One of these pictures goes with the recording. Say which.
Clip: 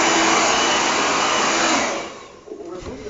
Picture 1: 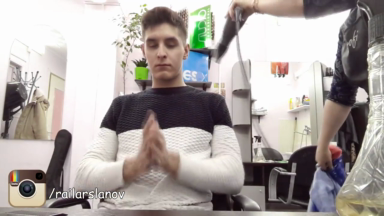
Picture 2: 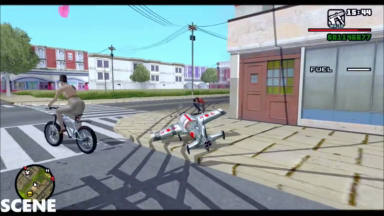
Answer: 1